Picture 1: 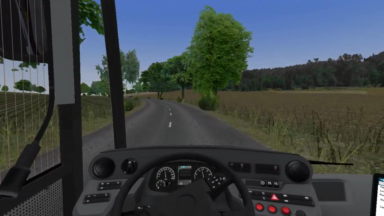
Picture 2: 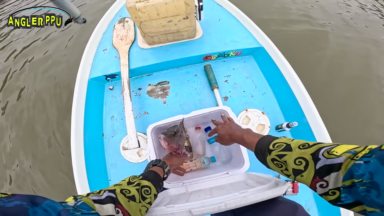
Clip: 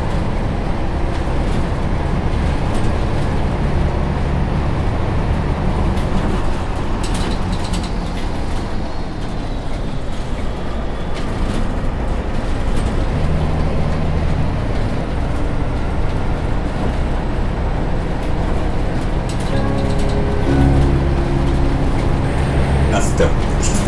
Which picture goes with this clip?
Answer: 1